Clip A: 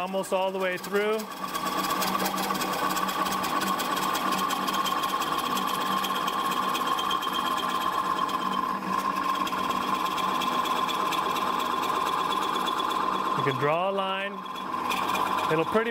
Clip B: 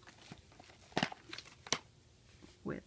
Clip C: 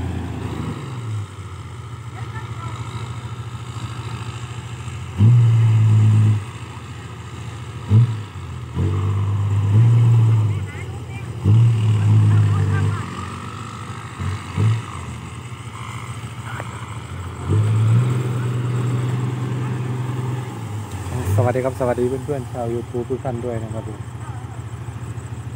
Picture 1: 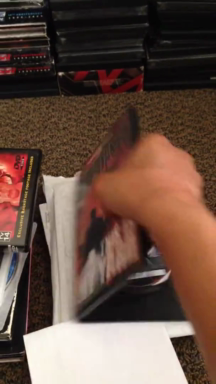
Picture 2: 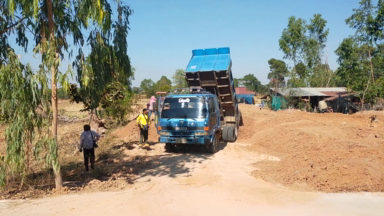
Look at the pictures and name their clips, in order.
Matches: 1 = B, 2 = C